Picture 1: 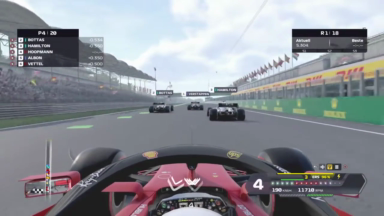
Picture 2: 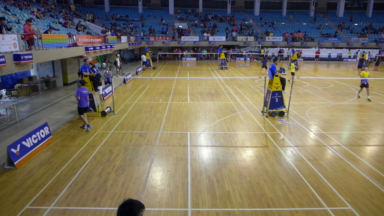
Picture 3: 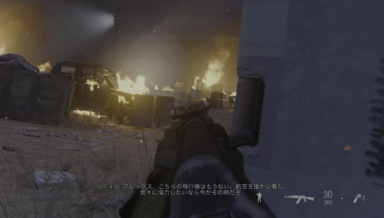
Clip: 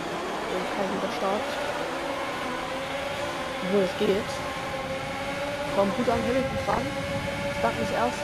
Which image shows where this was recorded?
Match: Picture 1